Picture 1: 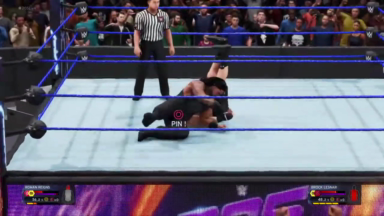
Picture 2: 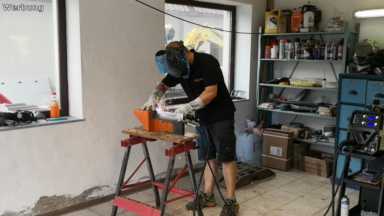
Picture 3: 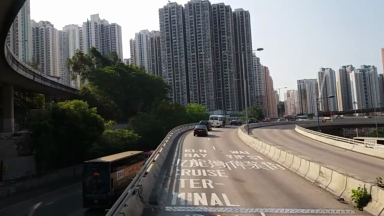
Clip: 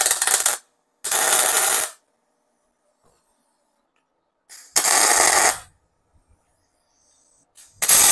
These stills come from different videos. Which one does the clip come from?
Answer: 2